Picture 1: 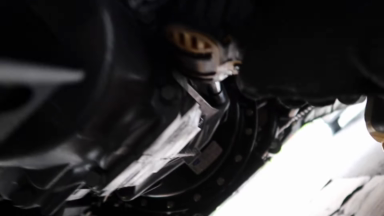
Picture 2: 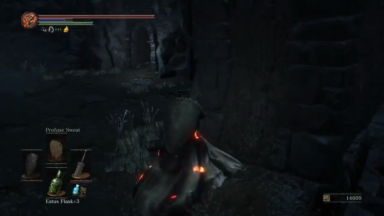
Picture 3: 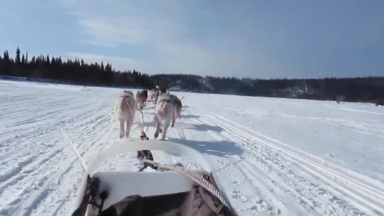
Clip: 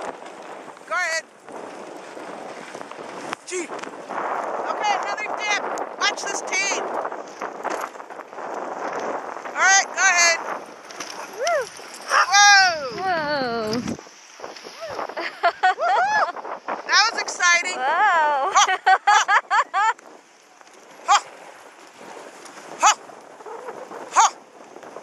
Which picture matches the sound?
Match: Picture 3